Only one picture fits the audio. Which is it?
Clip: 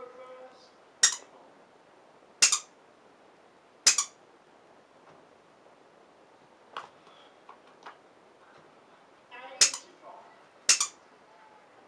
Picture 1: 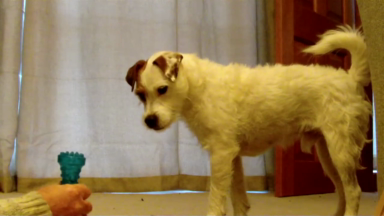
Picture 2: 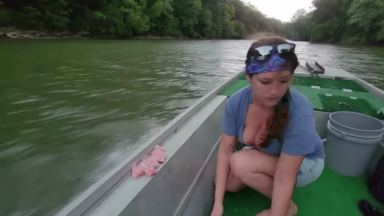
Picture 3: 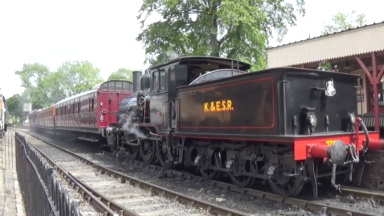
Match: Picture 1